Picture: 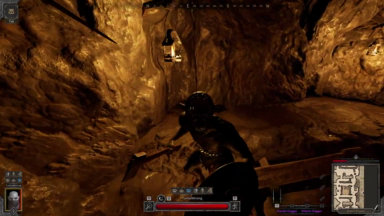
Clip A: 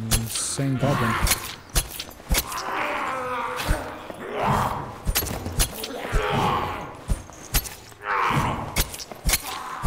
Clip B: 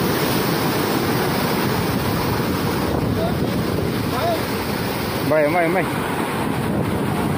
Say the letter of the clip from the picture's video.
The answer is A